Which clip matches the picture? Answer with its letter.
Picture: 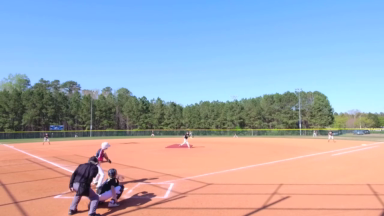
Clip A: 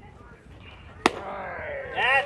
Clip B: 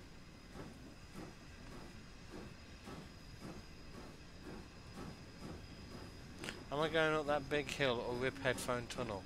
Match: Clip A